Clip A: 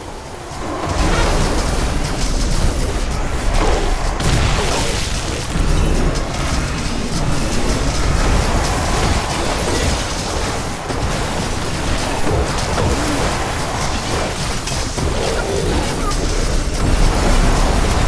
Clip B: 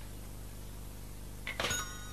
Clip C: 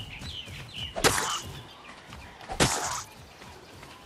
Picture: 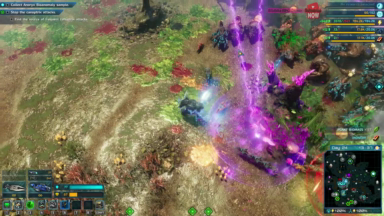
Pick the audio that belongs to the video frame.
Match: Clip A